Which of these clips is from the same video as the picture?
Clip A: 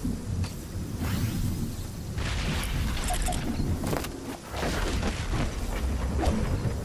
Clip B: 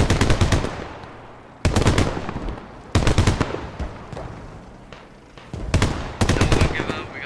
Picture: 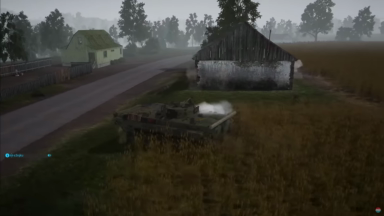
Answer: B